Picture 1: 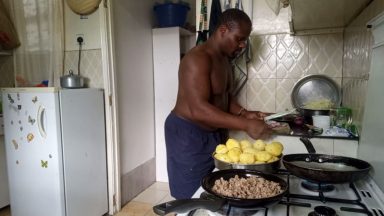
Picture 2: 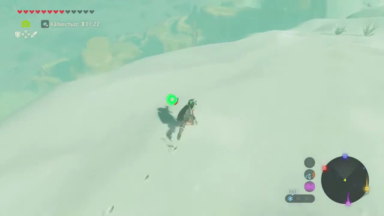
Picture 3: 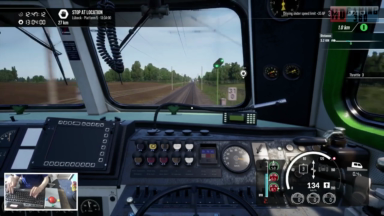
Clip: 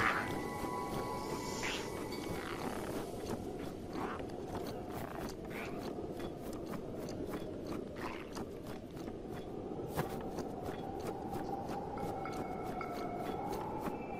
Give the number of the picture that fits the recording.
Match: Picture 2